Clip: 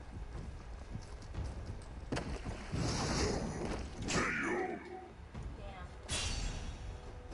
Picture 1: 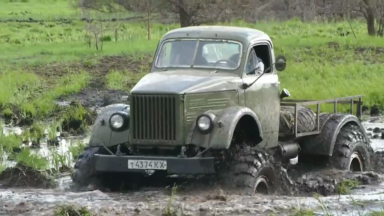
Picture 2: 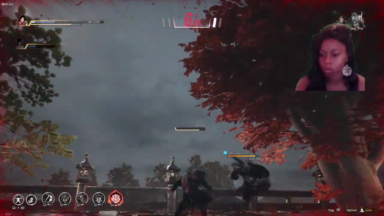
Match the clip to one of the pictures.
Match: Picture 2